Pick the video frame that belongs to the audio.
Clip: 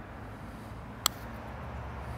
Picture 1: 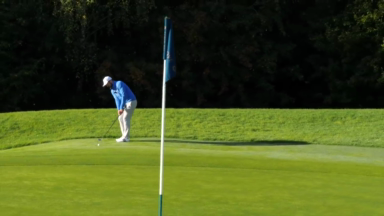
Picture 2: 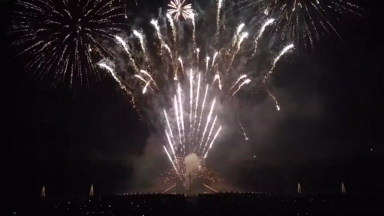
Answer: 1